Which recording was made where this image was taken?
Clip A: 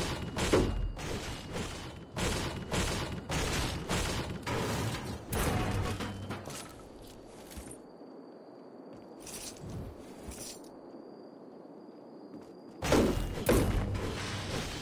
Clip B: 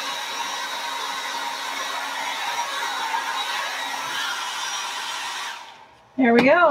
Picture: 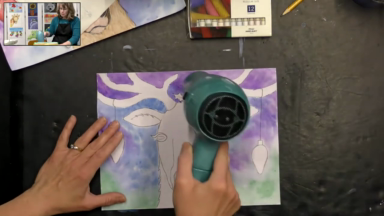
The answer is B